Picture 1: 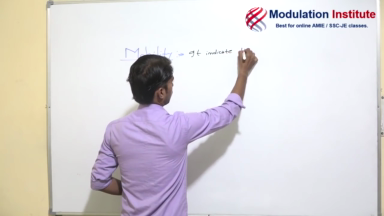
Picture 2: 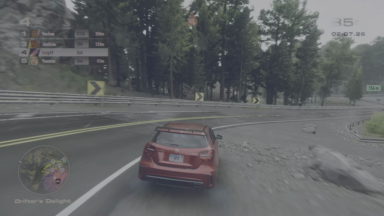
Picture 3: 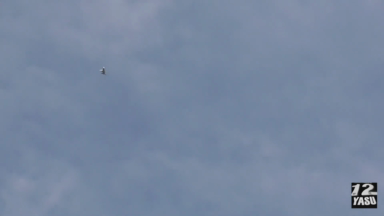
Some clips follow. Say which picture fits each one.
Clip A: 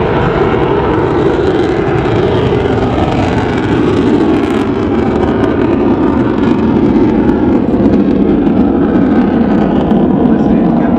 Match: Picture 3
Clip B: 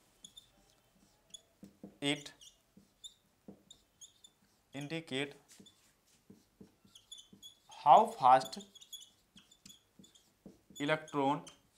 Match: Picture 1